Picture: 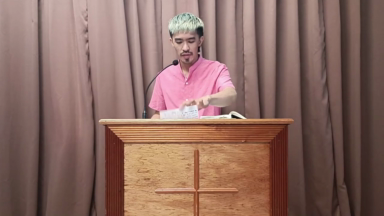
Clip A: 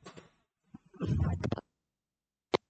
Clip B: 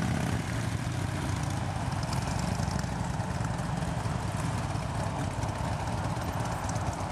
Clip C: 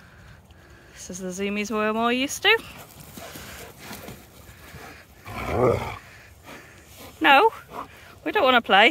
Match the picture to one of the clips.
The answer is A